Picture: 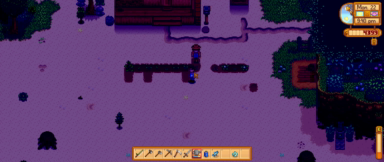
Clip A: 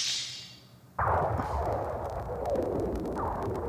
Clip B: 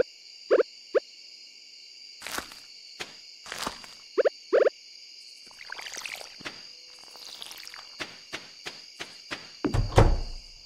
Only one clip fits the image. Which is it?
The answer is B